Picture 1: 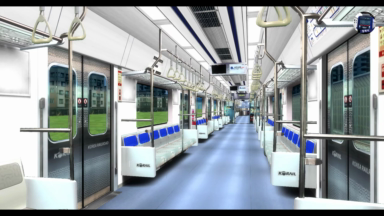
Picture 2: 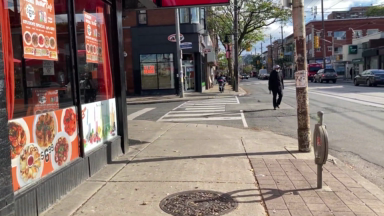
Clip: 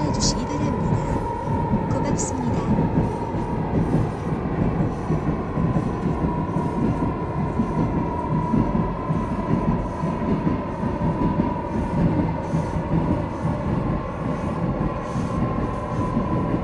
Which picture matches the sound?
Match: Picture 1